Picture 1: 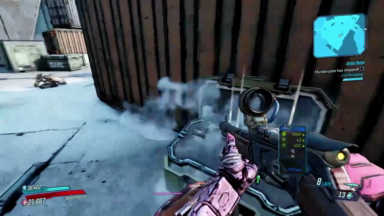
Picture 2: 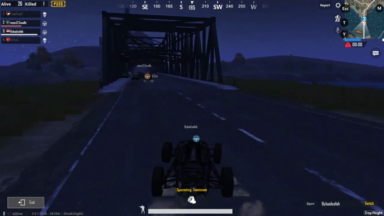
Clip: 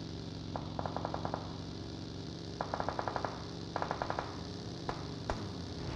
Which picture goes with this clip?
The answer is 2